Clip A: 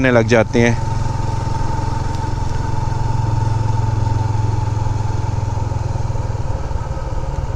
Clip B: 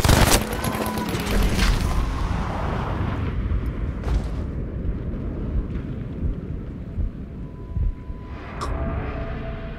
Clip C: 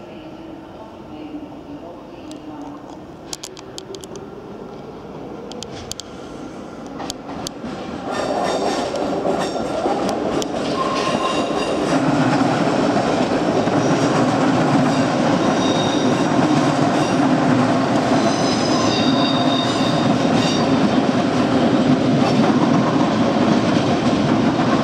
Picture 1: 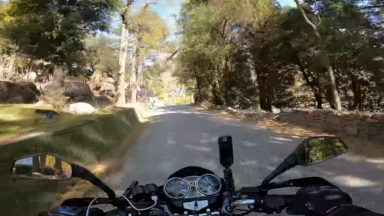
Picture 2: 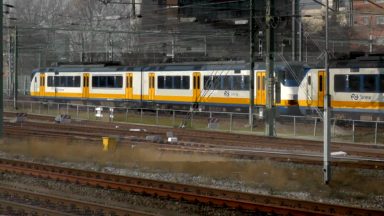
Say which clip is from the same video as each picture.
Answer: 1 A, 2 C